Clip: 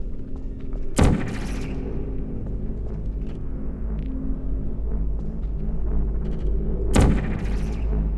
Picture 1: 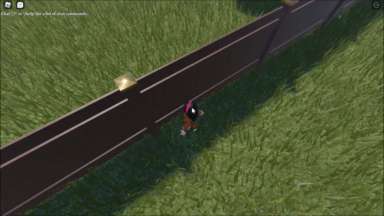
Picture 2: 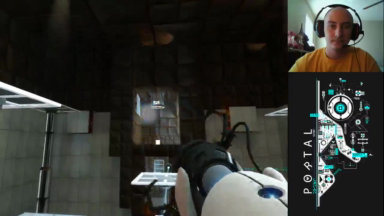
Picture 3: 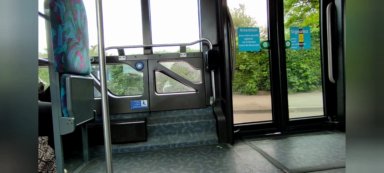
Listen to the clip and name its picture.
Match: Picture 2